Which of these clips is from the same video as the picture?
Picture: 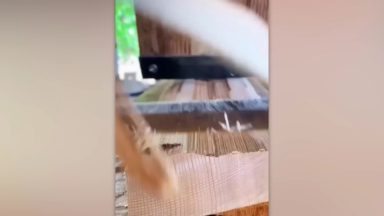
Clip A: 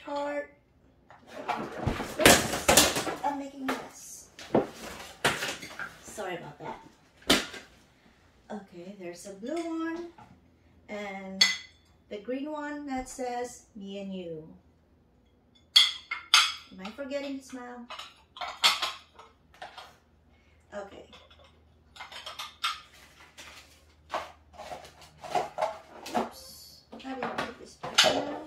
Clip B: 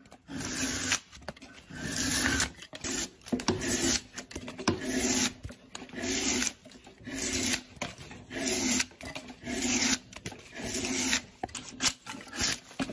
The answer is B